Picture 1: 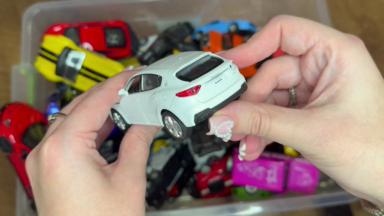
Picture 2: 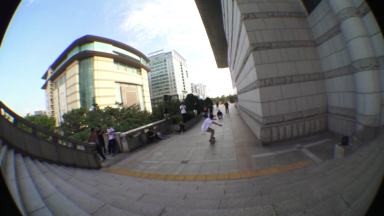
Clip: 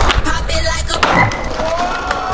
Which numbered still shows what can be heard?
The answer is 2